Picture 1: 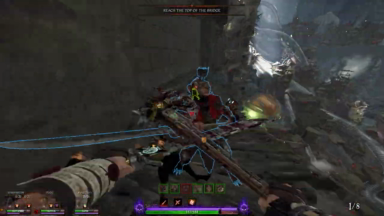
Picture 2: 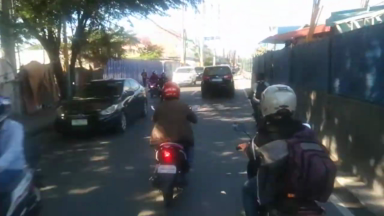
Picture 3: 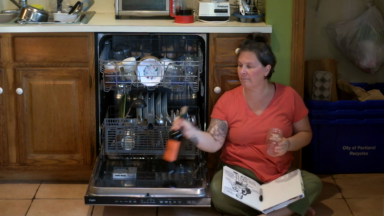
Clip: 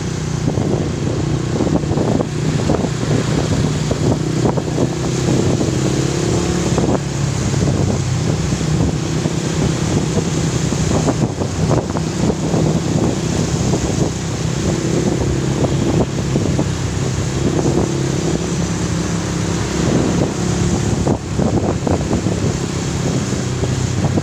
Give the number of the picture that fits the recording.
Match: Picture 2